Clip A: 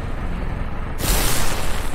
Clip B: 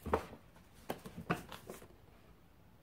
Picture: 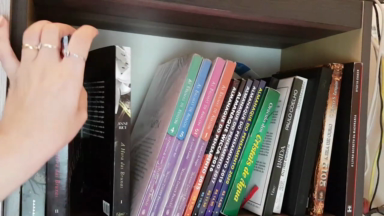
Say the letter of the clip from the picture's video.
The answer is B